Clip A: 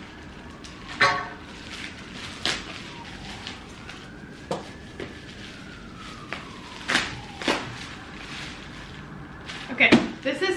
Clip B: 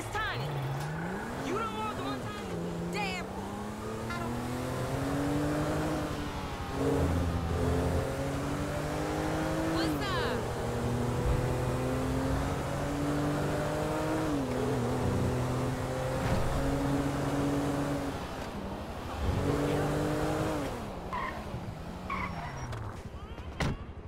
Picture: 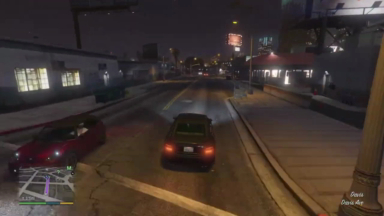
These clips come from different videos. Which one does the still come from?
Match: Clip B